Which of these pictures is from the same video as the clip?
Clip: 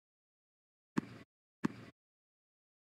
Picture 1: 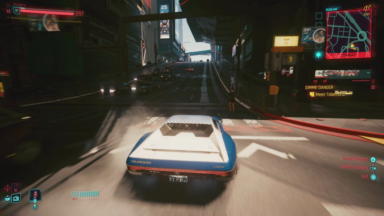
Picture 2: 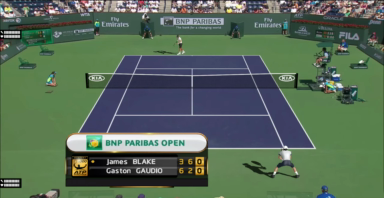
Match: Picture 2